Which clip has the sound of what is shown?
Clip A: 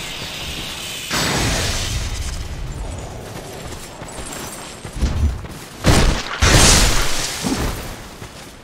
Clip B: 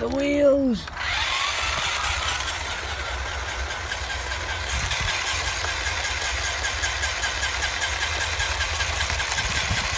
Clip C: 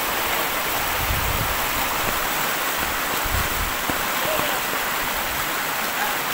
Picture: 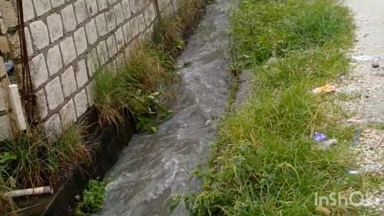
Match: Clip C